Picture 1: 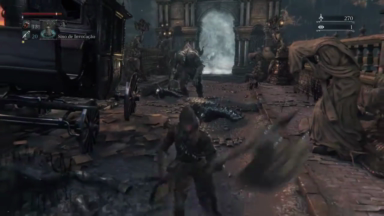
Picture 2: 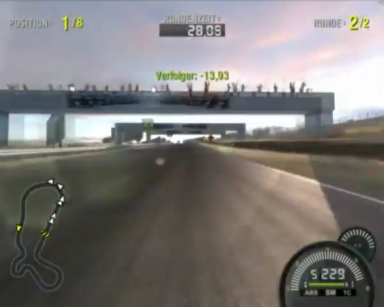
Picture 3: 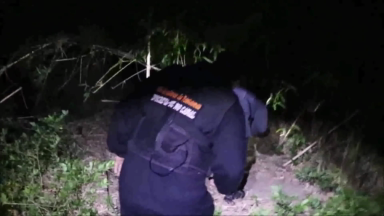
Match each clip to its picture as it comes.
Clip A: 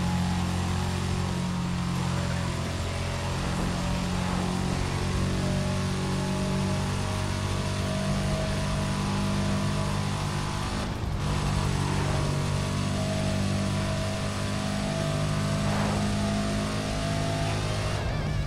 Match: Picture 2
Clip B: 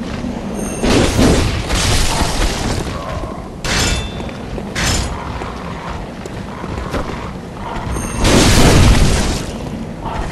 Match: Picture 1